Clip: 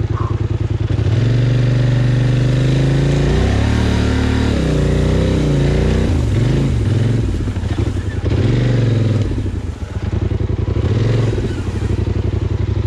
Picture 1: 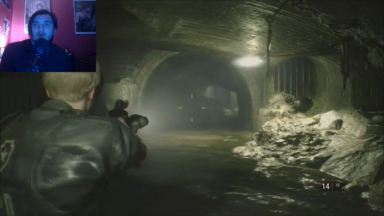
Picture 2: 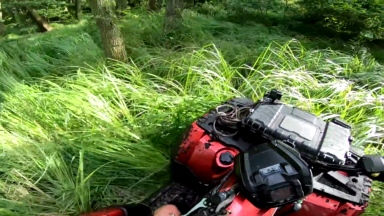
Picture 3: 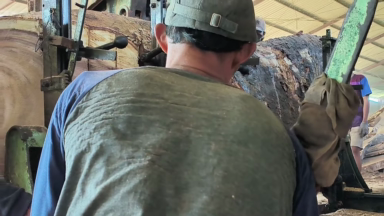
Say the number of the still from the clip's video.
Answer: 2